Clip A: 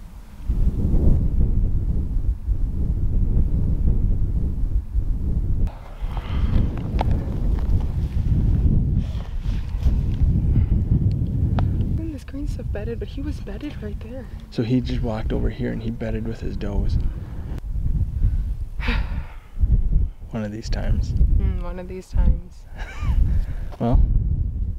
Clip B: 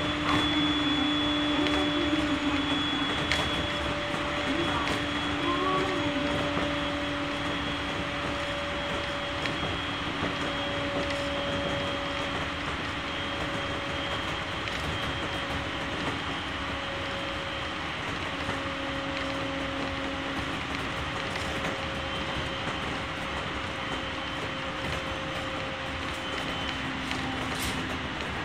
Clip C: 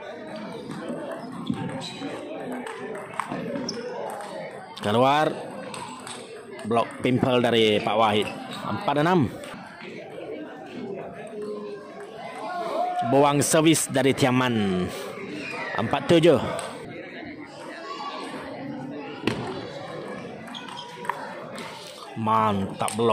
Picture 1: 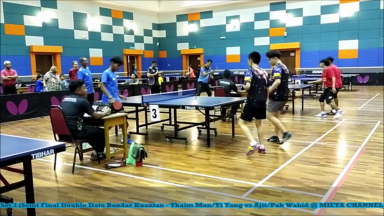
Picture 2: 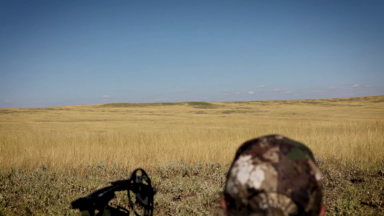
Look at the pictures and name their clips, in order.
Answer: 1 C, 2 A